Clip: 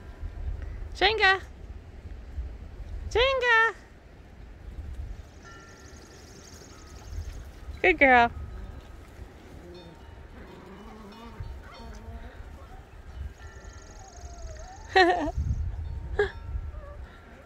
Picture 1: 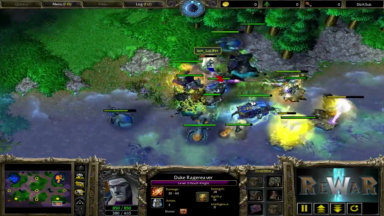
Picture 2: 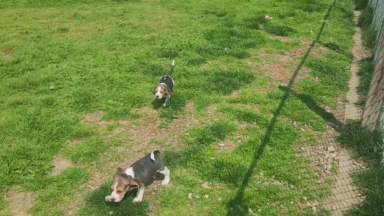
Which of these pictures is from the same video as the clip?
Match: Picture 2